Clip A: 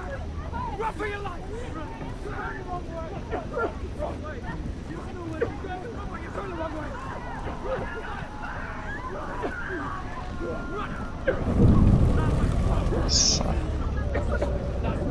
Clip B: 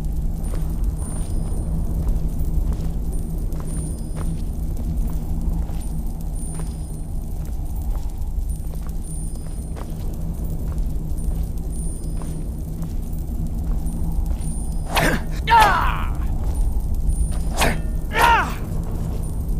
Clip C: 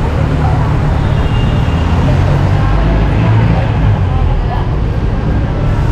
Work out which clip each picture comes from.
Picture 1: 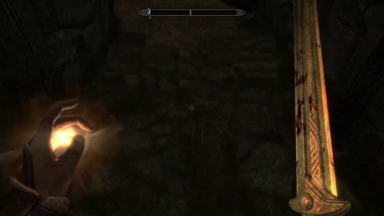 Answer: B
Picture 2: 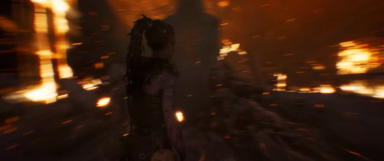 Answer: A